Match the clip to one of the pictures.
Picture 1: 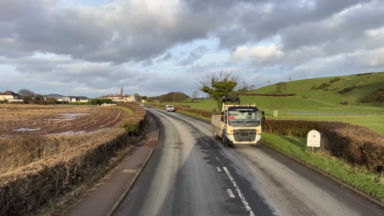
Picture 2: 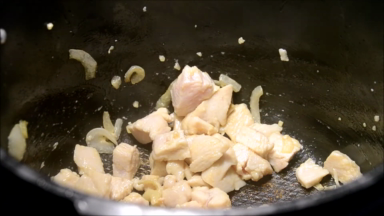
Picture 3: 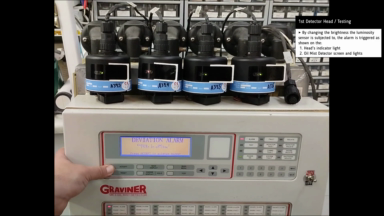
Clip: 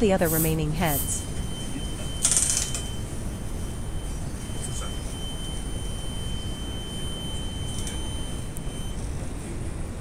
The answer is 3